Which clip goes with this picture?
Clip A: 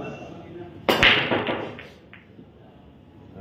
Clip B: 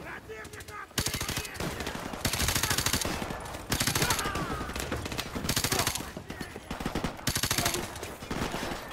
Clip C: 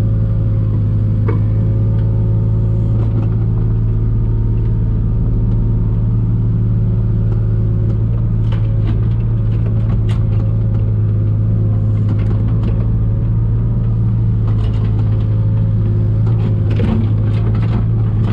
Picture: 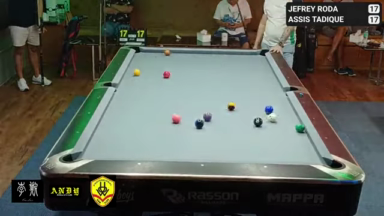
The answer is A